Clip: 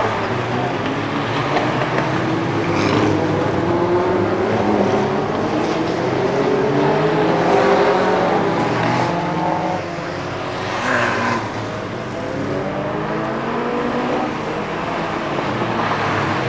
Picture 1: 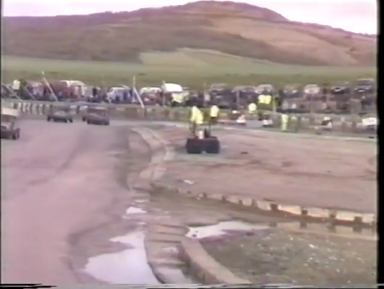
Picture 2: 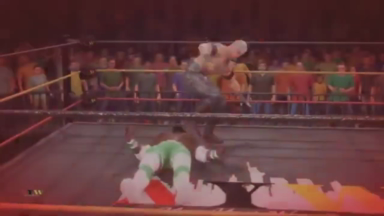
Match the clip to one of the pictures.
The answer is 1